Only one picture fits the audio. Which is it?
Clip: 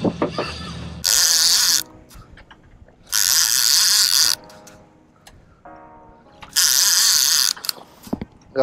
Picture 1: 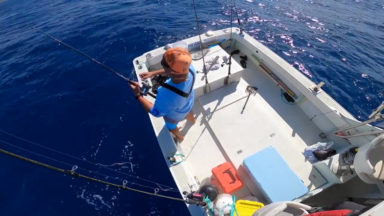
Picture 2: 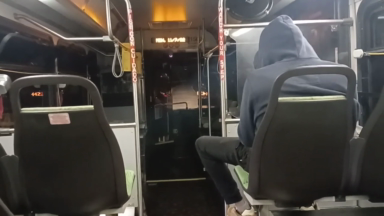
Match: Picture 1